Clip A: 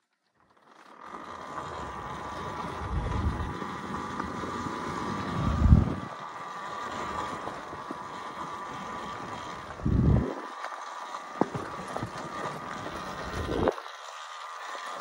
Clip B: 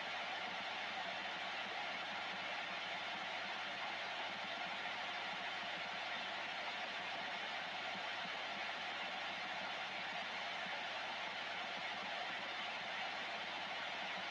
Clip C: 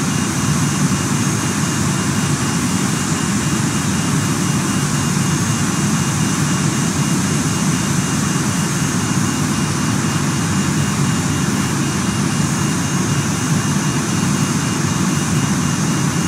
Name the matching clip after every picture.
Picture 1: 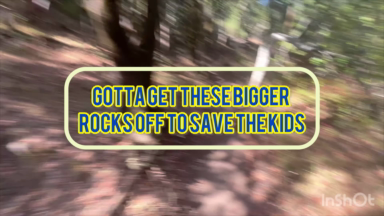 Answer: A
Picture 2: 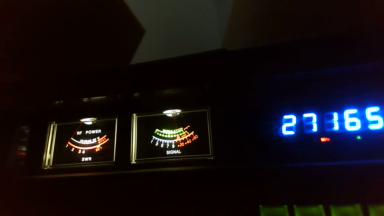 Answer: B